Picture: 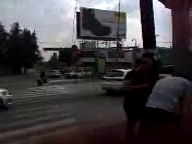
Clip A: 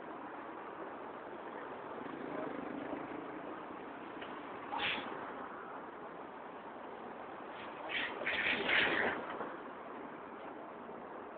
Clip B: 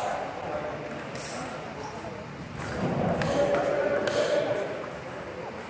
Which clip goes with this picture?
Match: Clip A